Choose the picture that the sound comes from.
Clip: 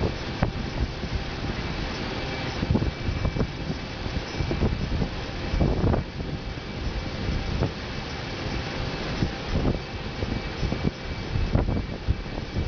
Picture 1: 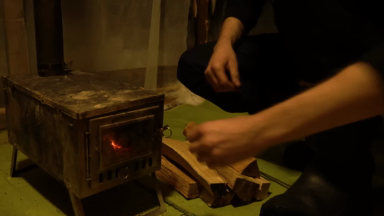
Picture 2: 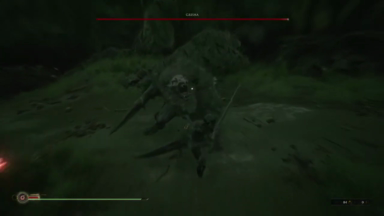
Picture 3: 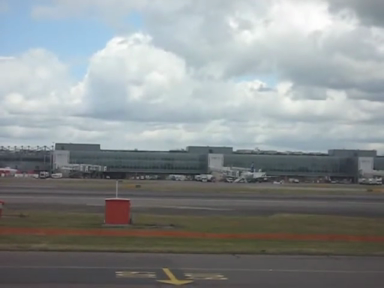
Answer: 3